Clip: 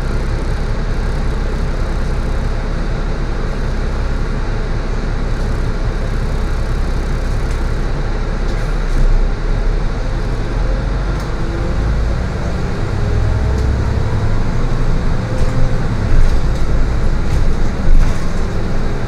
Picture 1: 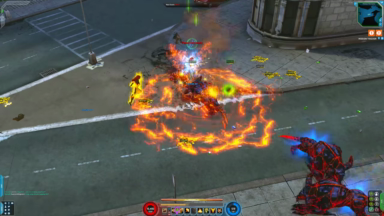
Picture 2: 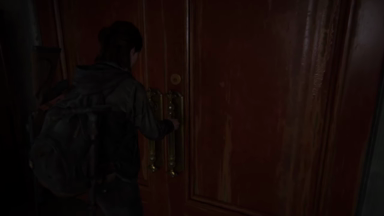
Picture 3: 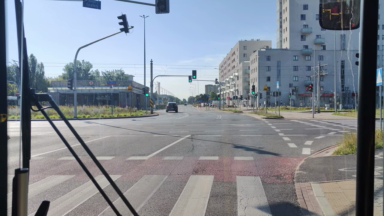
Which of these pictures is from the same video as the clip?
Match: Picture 3